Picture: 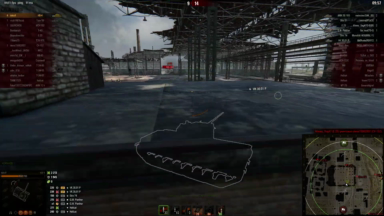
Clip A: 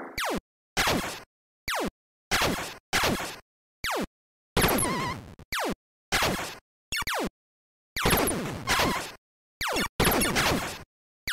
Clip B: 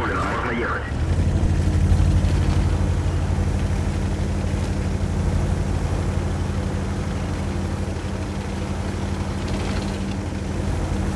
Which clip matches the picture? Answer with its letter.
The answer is B